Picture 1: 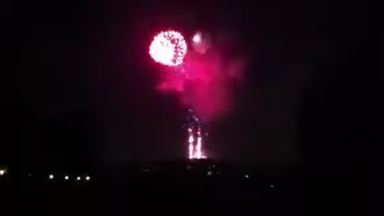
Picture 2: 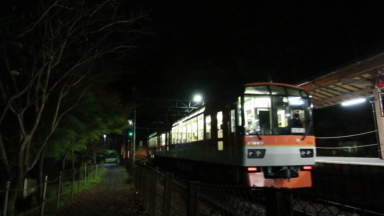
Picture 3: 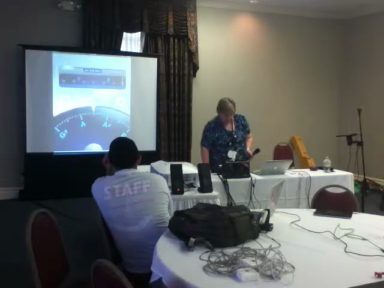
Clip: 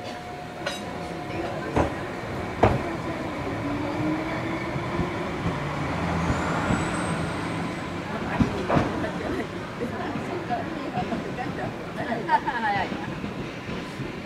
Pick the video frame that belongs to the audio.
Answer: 2